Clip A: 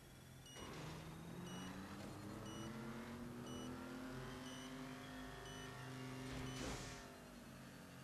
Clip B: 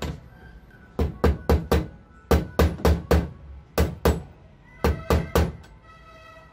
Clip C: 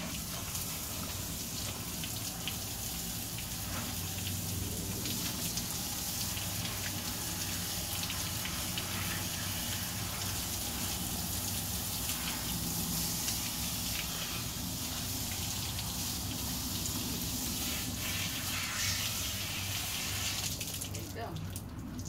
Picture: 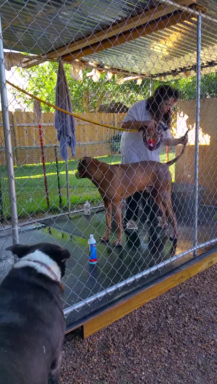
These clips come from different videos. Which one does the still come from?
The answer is C